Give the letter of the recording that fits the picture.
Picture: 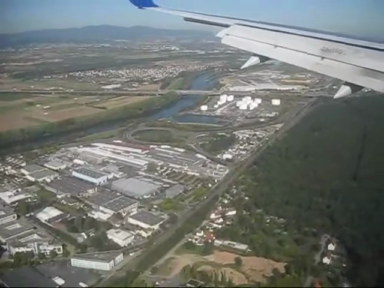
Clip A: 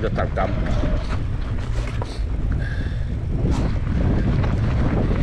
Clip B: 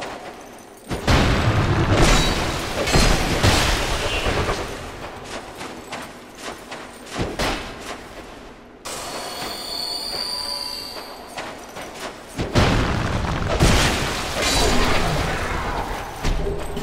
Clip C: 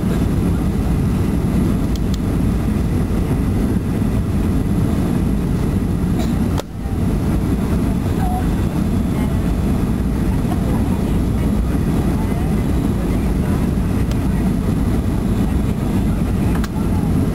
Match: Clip C